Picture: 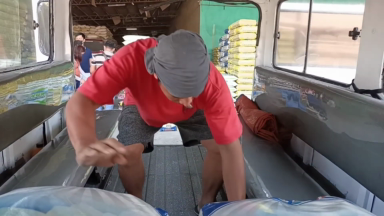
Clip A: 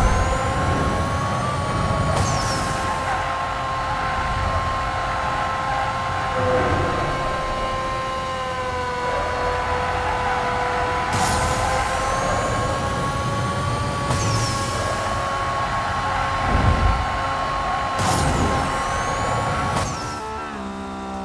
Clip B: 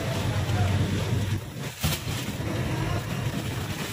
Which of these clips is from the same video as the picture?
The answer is B